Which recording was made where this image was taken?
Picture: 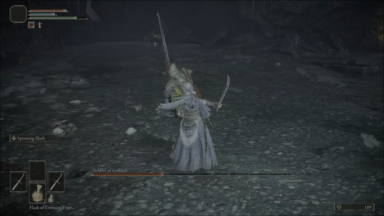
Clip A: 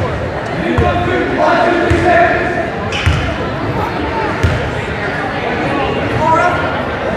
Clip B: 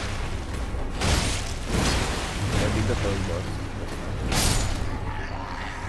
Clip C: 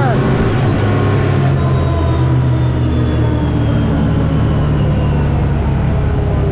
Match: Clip B